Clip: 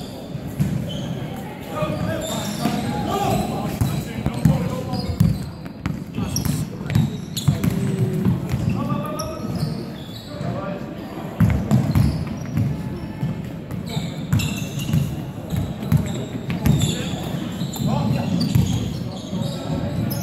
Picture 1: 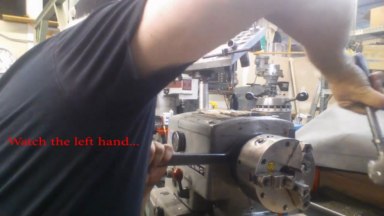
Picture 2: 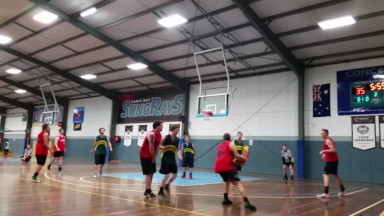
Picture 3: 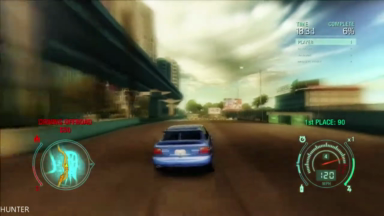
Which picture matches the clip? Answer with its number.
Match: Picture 2